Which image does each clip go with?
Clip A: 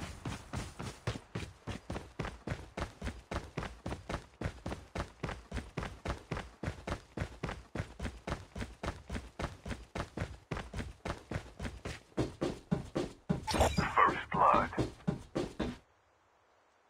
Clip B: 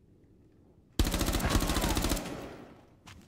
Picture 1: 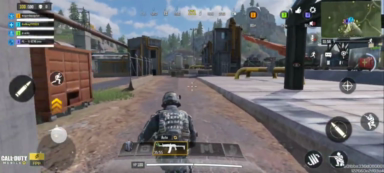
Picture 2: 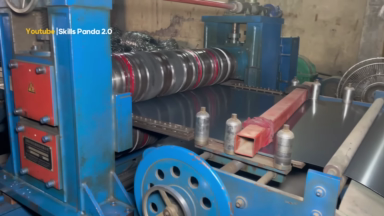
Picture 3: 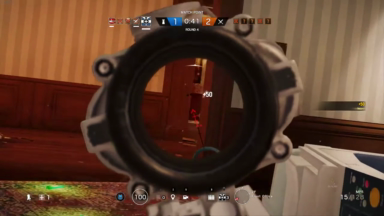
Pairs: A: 1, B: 3